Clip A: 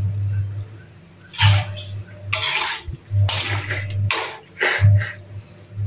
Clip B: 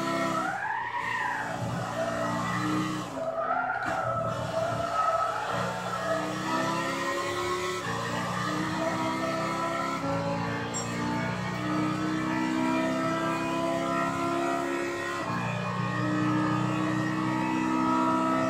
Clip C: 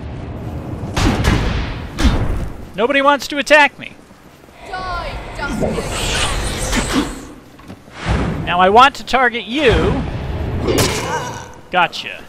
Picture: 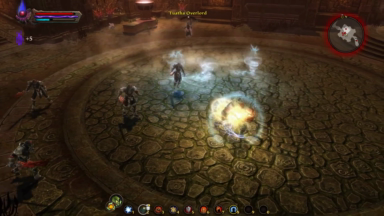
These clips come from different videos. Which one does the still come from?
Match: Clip C